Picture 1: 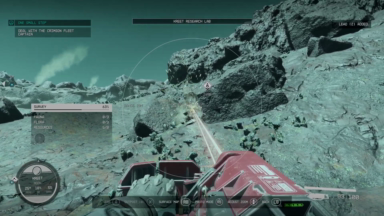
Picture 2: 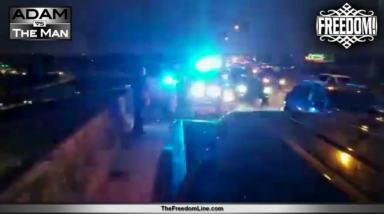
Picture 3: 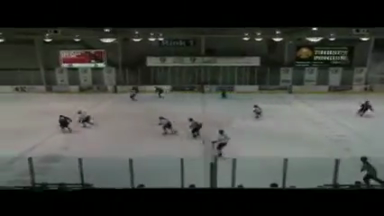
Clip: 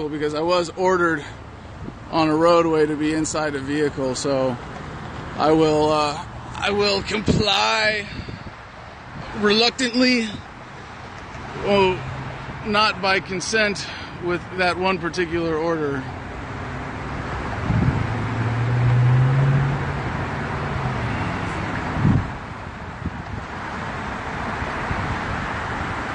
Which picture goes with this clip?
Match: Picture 2